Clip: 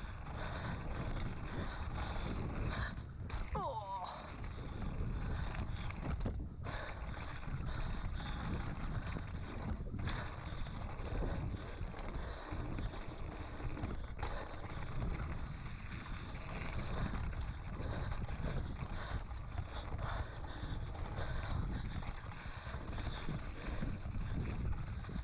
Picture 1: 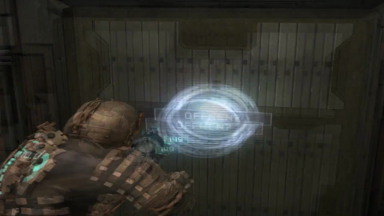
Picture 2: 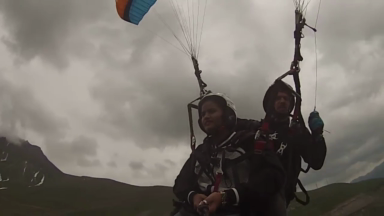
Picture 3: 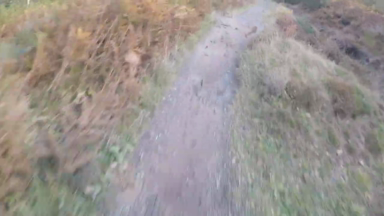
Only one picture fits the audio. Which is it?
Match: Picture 3